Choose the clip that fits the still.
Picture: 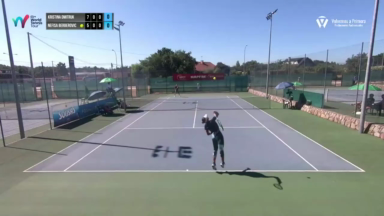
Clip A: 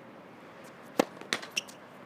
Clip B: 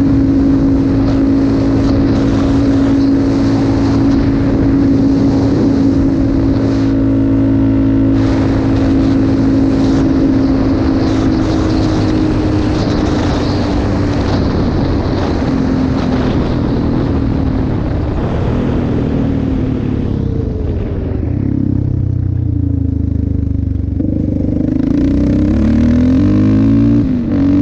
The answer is A